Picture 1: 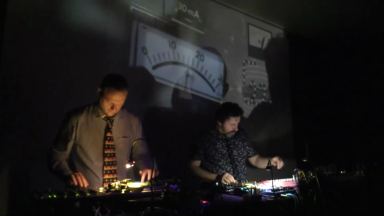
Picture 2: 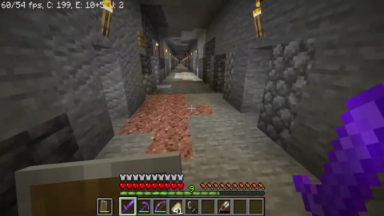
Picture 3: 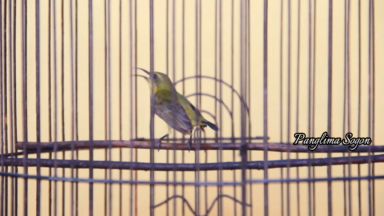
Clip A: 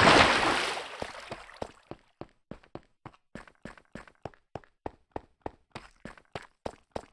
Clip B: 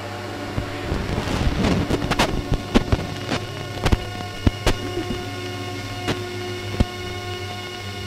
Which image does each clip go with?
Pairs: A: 2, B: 1